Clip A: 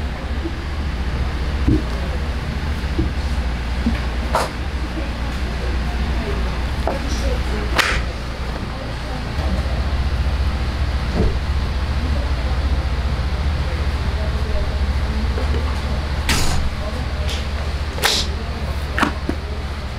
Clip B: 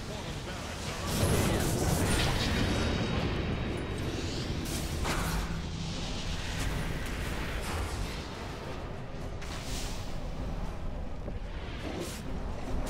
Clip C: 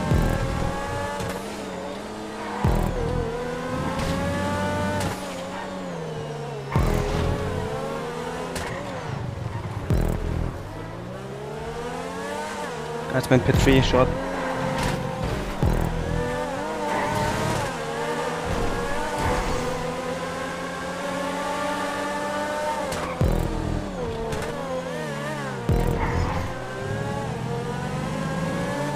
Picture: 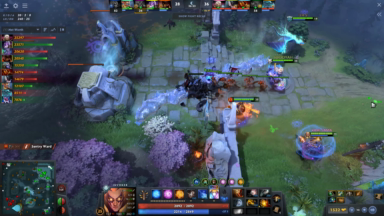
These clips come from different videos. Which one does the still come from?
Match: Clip B